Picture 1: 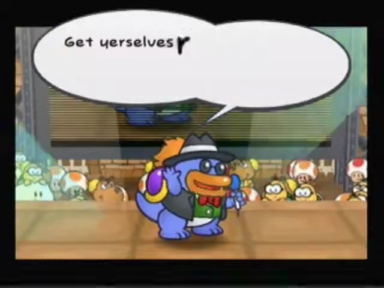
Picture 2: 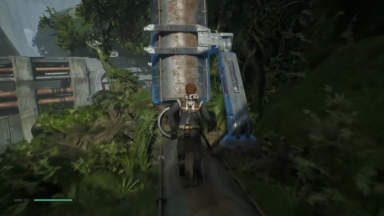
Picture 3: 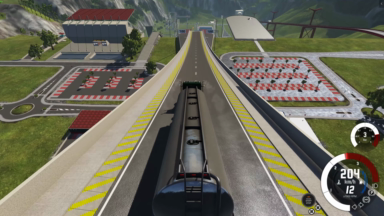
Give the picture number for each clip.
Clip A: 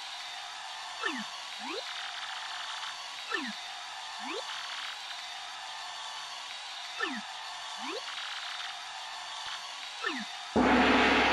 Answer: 1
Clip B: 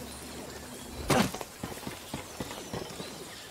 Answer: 2